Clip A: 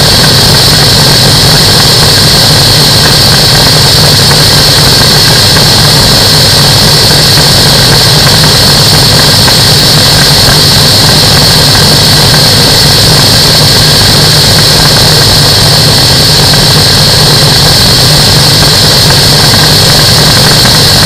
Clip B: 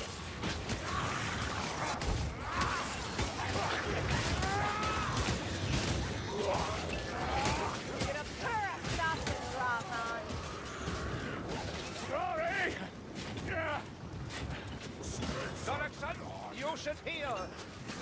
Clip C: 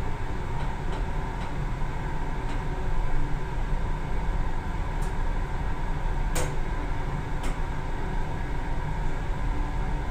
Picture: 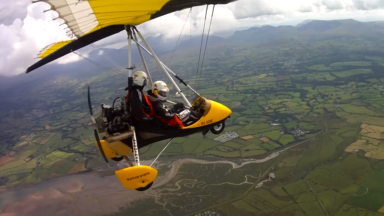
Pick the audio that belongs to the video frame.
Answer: A